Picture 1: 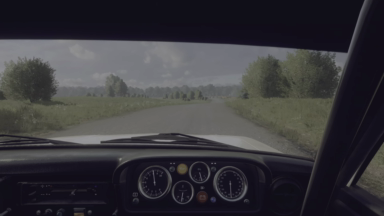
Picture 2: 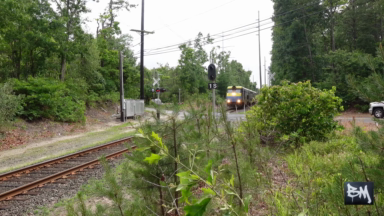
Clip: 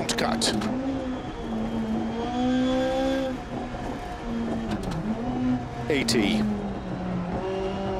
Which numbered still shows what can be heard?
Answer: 1